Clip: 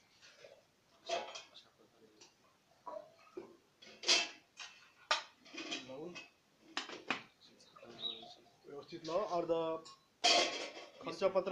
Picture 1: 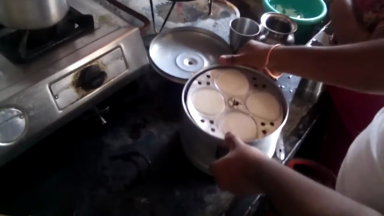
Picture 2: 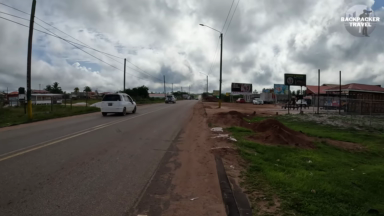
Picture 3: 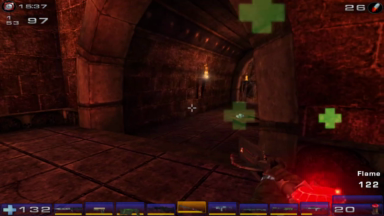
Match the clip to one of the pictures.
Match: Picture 1